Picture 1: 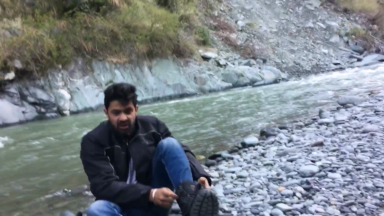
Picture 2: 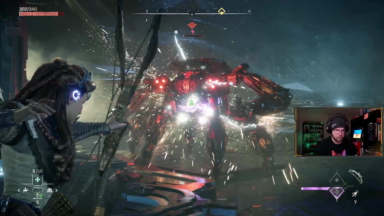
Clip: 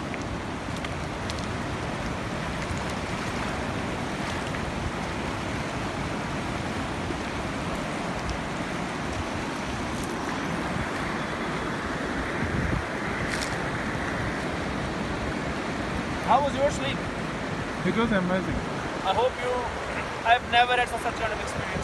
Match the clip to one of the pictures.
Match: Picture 1